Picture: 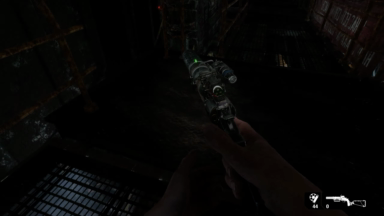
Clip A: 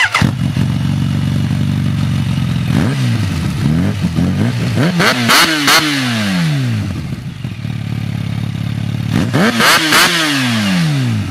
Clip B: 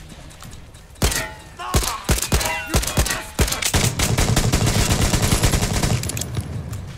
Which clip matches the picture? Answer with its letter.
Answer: B